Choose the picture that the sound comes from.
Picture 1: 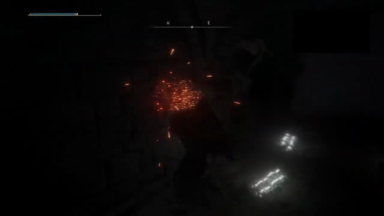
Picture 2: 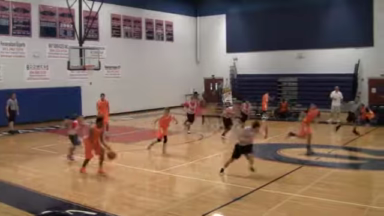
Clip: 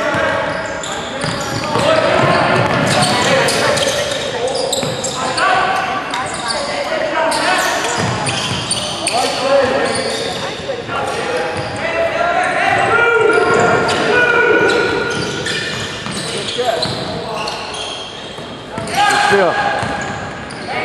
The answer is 2